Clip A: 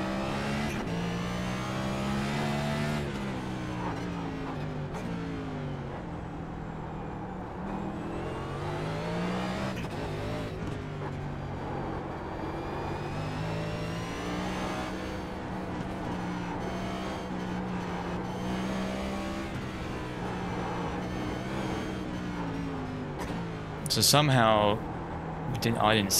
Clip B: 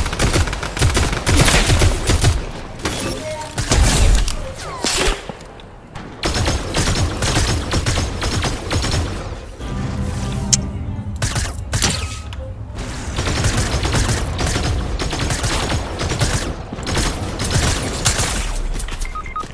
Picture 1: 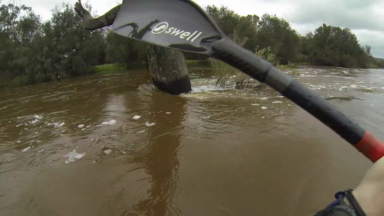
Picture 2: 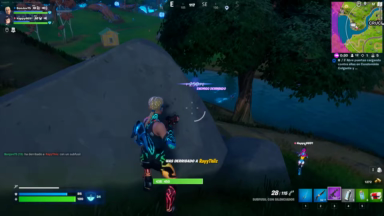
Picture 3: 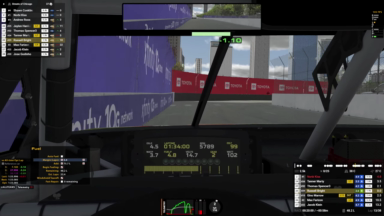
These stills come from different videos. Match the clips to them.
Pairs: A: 3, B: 2